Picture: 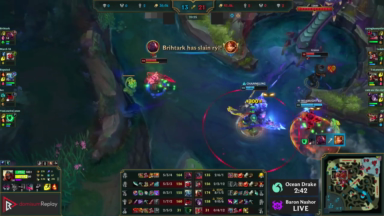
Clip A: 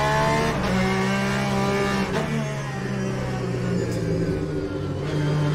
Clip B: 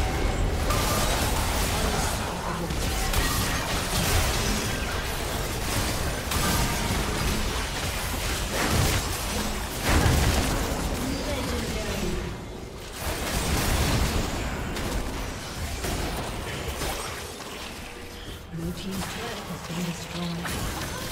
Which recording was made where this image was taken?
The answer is B